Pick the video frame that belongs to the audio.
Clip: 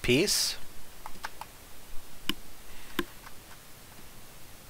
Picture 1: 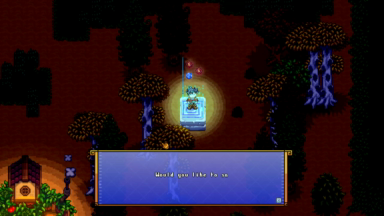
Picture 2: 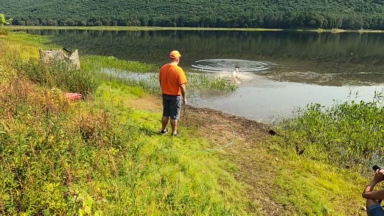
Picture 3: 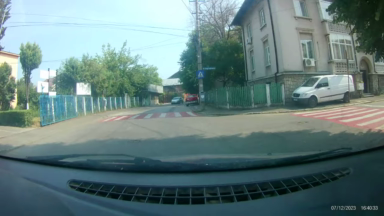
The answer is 1